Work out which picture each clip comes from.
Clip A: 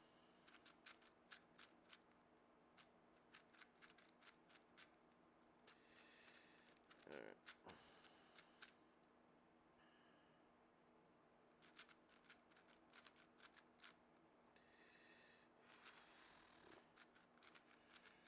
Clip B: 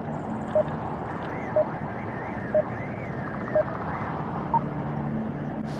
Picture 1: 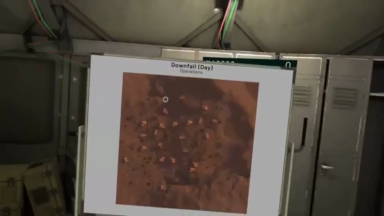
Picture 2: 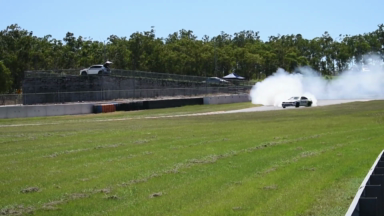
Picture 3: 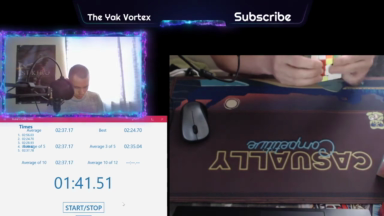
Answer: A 3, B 1